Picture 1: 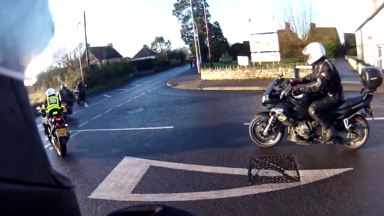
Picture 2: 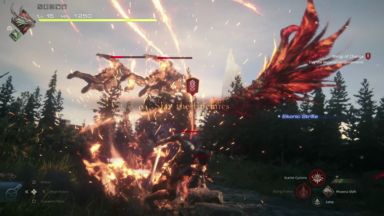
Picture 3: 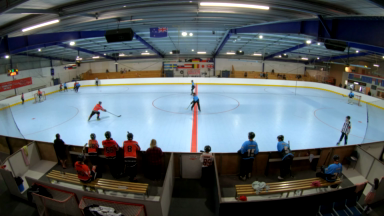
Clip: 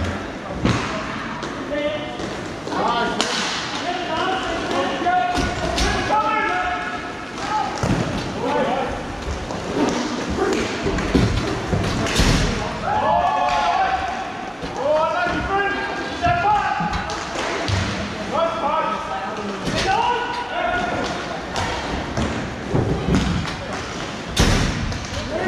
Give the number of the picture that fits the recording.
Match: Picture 3